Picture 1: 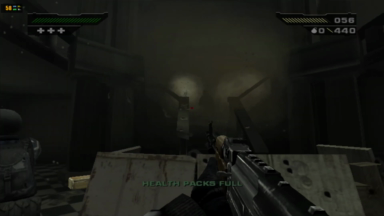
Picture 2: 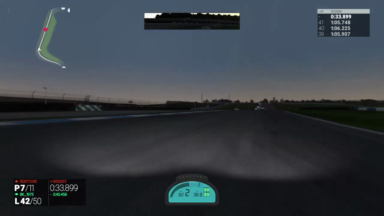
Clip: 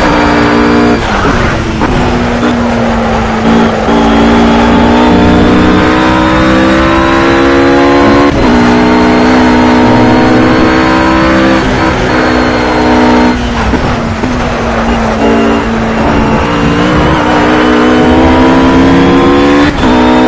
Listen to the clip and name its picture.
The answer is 2